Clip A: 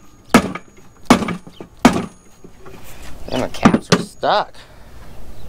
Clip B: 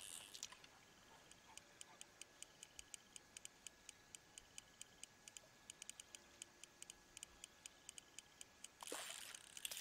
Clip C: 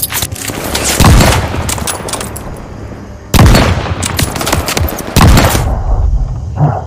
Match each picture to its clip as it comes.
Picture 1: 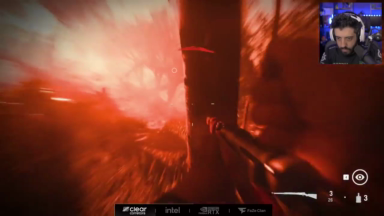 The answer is C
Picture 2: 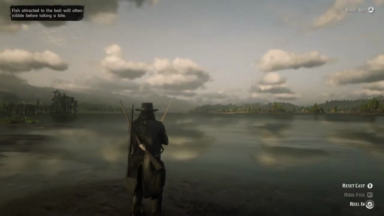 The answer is B